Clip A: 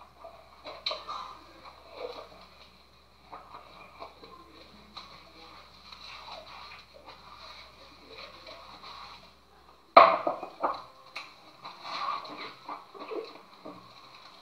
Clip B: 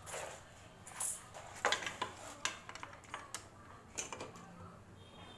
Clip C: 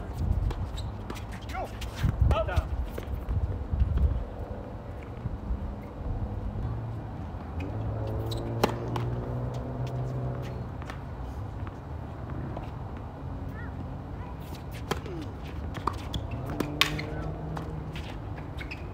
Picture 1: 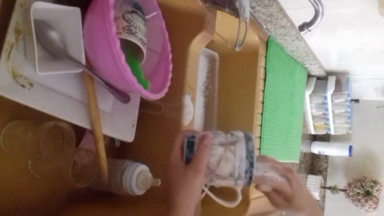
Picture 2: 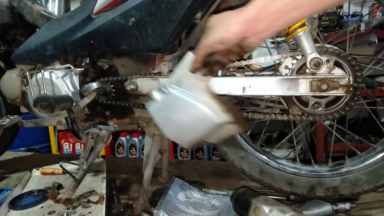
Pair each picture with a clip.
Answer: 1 A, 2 B